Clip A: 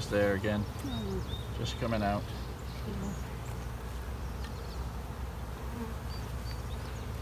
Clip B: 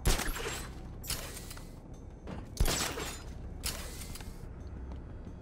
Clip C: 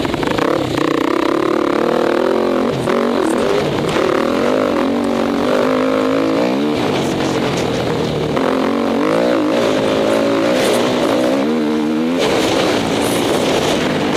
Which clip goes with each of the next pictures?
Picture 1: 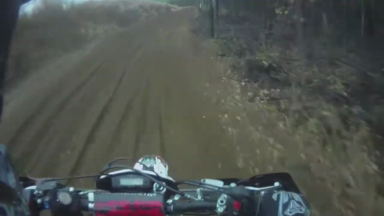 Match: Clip C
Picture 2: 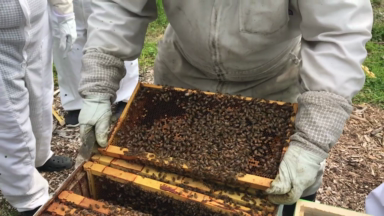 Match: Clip A